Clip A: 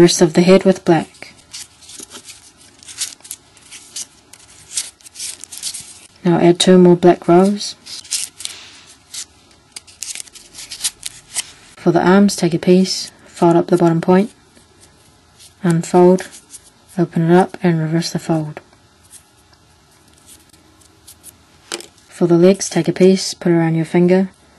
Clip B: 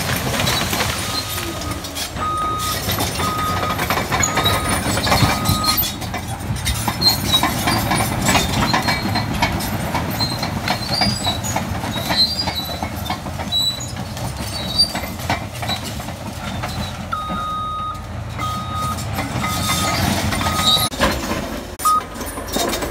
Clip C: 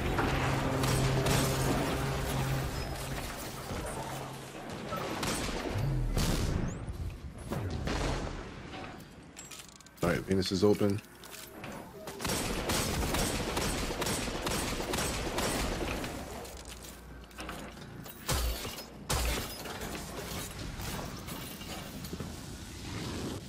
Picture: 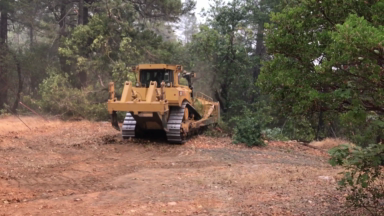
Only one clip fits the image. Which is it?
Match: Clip B